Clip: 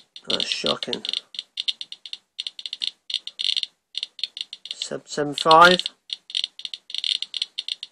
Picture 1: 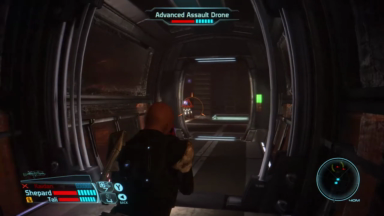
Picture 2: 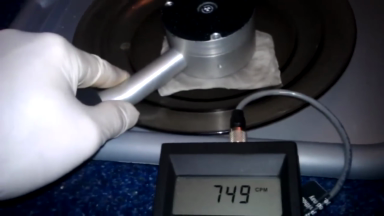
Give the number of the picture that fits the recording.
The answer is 2